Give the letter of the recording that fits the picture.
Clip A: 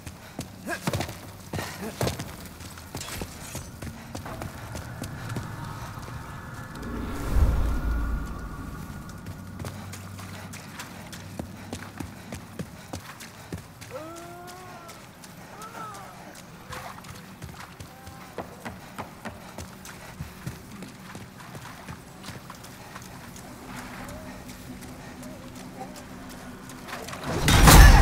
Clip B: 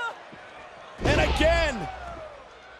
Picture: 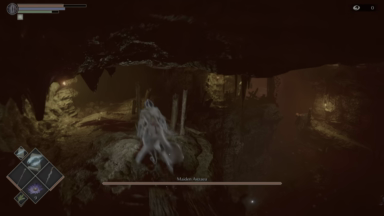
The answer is A